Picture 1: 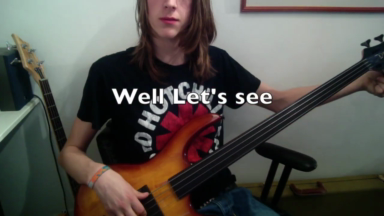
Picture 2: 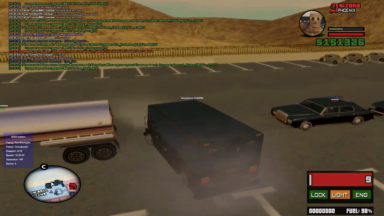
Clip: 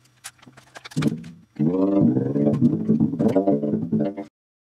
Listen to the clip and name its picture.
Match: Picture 1